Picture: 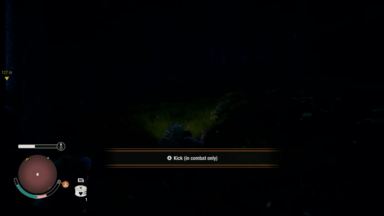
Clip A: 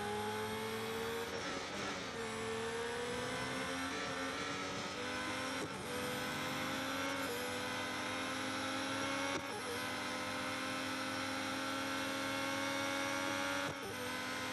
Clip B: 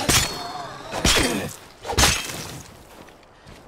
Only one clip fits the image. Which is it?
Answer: B